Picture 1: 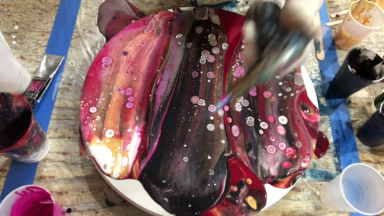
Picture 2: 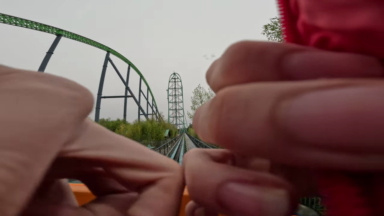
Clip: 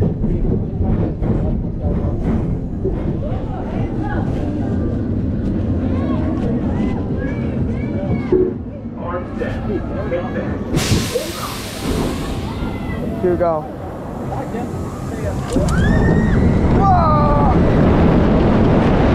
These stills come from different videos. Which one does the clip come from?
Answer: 2